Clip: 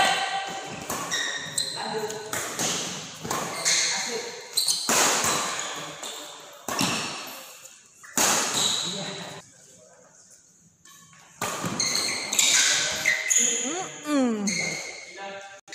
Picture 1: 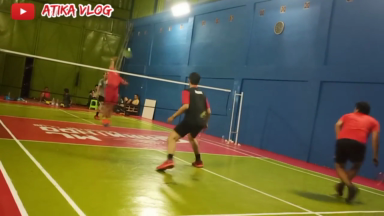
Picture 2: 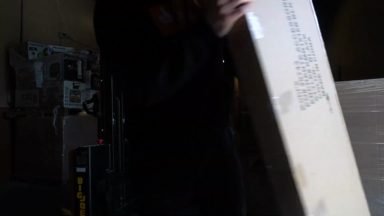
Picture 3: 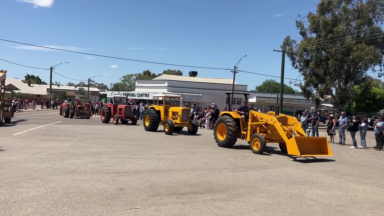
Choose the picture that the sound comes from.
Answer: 1